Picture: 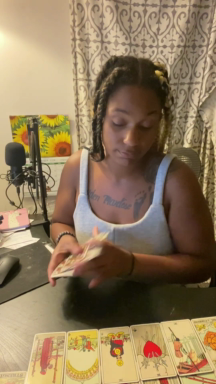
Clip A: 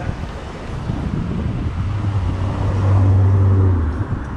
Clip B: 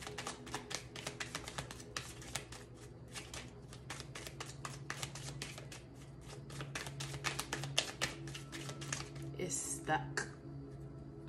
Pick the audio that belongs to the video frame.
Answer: B